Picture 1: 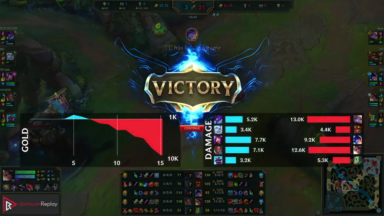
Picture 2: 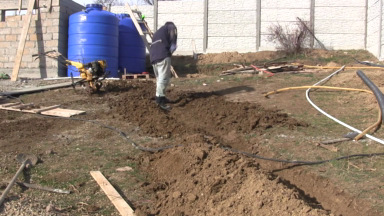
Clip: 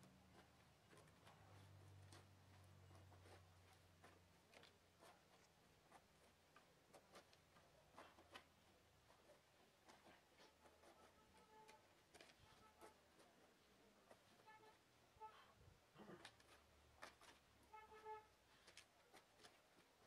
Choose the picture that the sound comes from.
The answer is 2